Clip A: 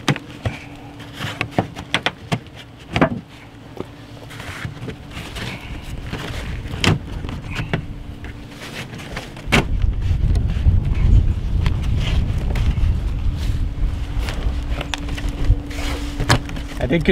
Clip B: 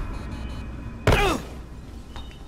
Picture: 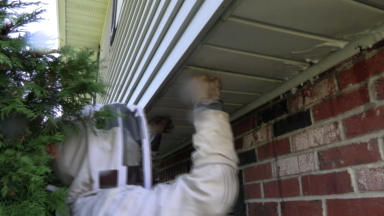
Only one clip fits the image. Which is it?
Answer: A